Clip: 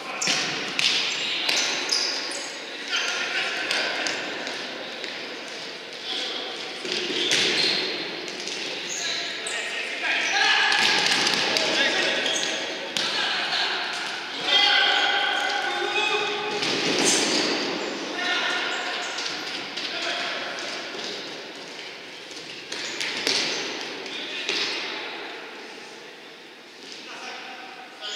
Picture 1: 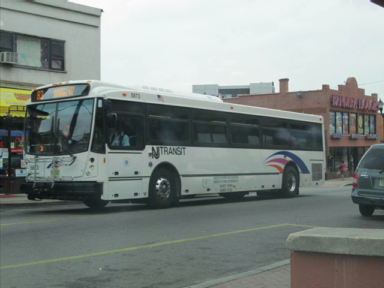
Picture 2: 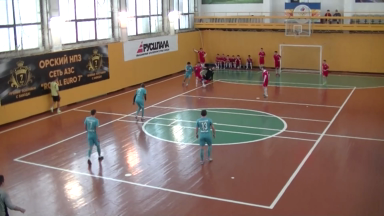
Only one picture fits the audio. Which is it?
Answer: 2